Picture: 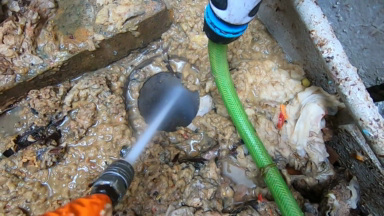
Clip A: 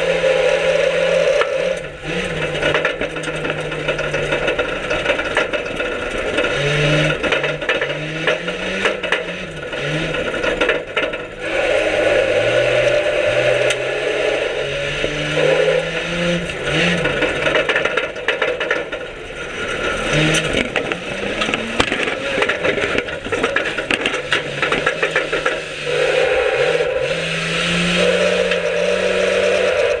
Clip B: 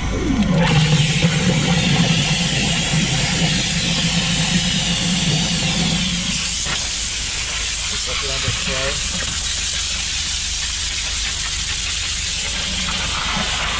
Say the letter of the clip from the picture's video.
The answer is B